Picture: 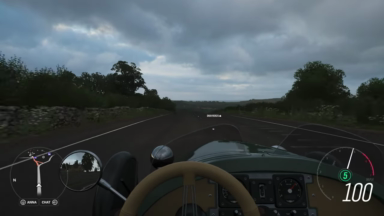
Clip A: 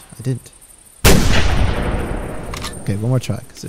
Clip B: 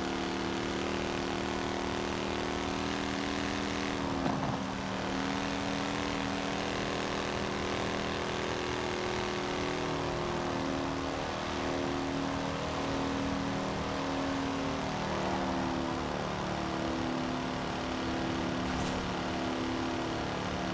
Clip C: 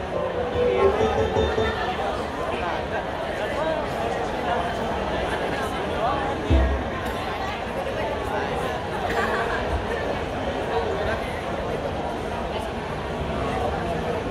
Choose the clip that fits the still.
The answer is B